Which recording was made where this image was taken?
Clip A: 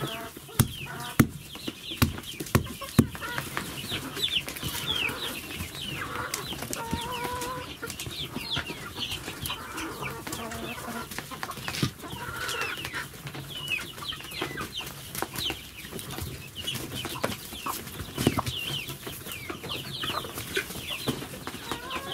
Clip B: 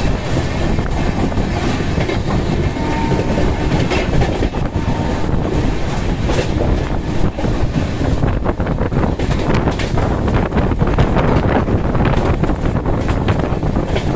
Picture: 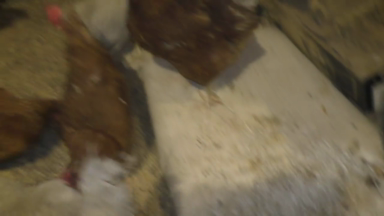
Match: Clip A